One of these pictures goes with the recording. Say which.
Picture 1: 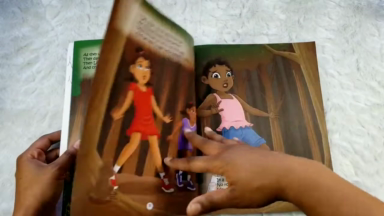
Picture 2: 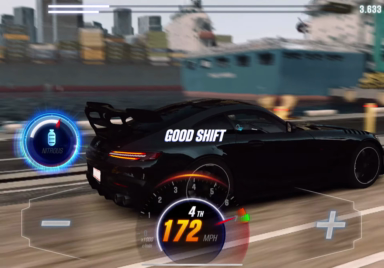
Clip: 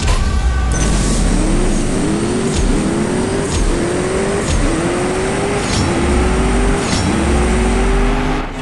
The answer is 2